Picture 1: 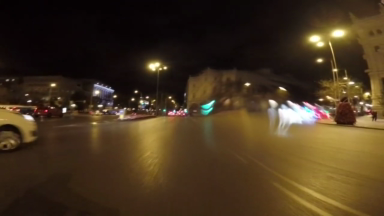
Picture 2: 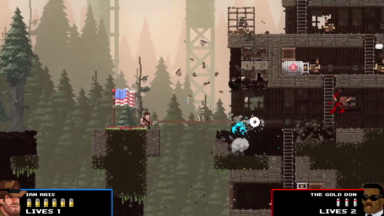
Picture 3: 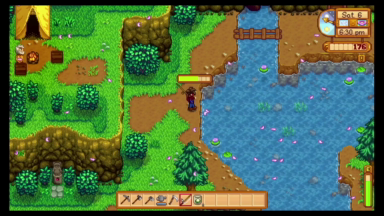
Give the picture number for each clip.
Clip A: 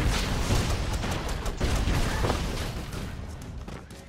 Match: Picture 2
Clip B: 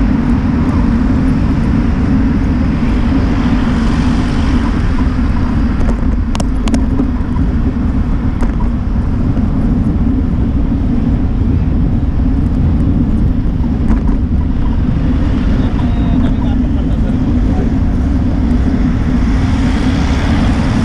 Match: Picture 1